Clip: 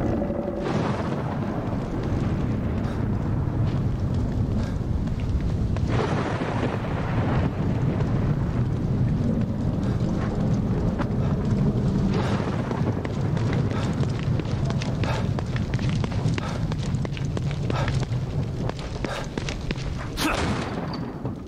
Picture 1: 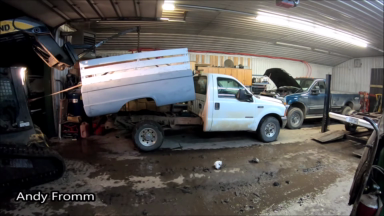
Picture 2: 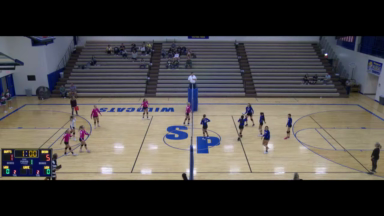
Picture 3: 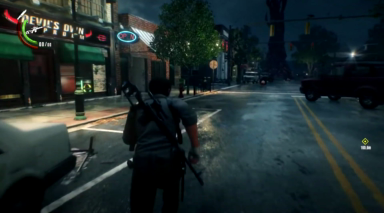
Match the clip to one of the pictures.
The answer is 3